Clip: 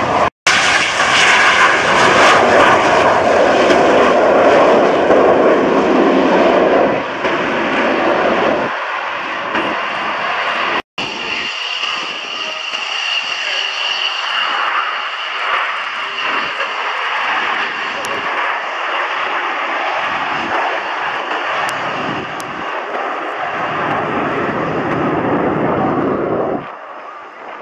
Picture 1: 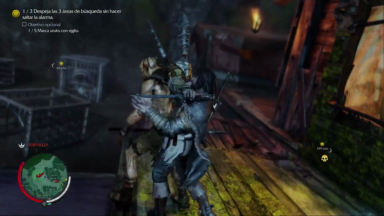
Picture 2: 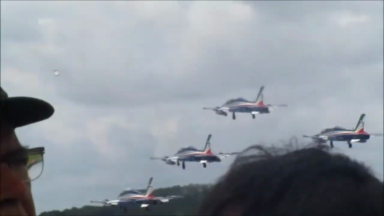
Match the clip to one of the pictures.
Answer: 2